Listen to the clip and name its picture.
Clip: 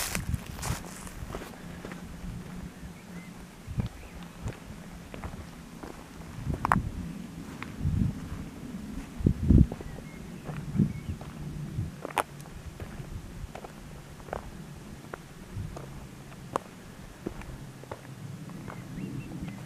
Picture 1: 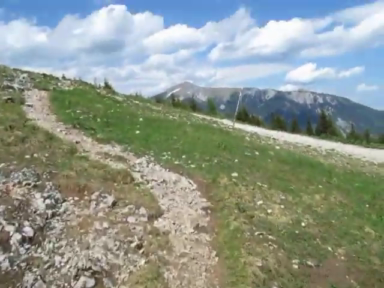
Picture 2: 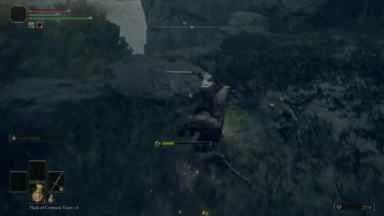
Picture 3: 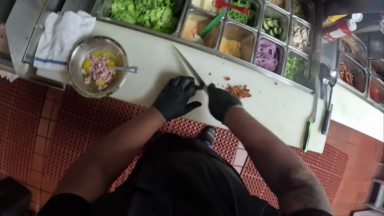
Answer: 1